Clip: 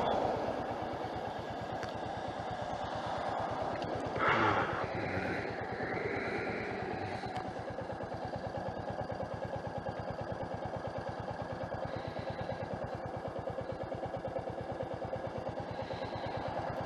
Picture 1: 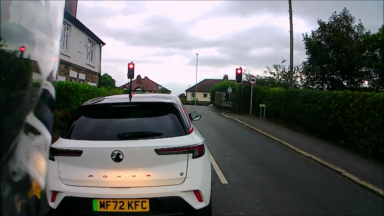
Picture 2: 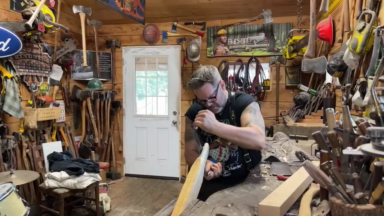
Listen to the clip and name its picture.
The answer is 1